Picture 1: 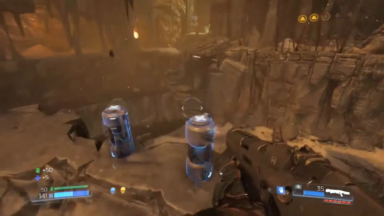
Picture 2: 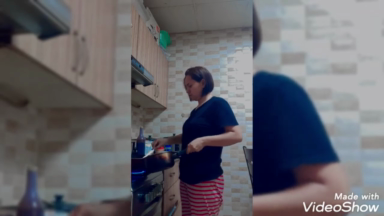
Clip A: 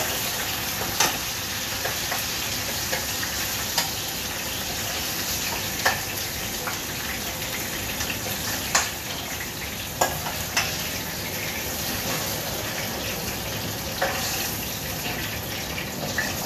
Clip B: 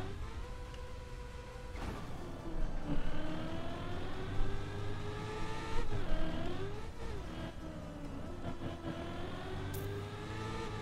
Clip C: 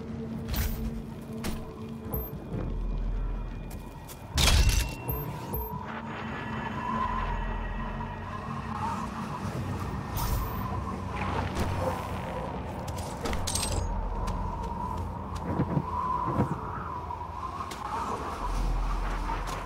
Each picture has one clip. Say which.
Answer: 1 C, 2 A